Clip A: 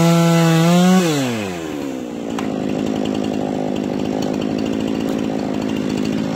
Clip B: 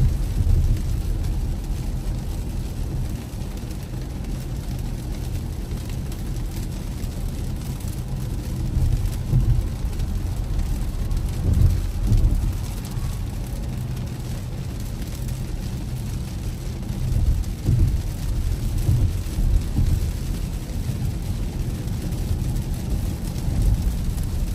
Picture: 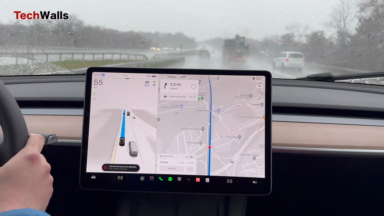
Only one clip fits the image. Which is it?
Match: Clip B